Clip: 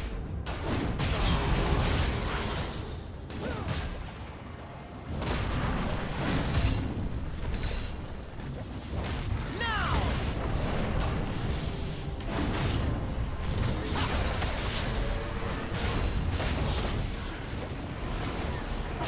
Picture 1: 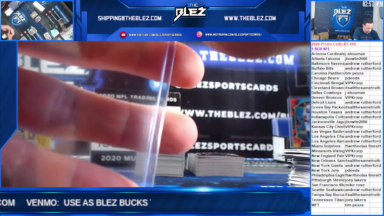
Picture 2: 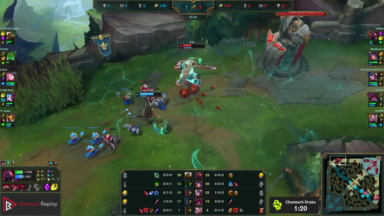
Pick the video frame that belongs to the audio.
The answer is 2